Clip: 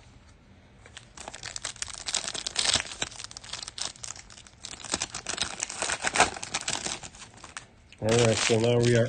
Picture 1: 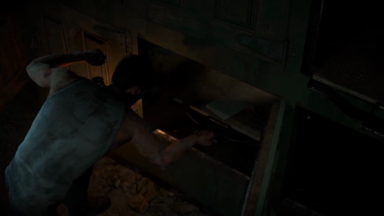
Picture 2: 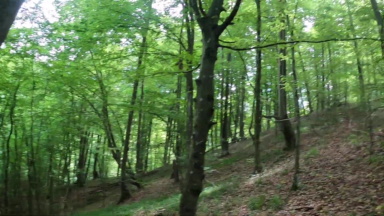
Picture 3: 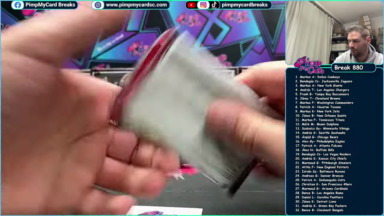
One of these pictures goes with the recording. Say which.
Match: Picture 3